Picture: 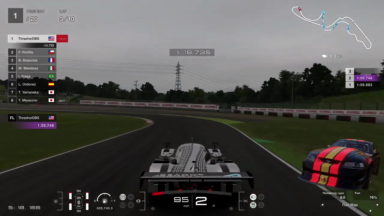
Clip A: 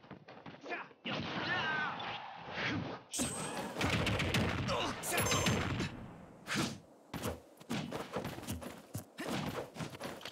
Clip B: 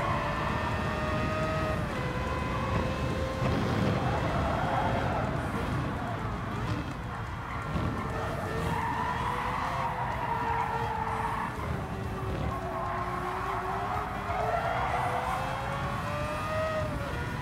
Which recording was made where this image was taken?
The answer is B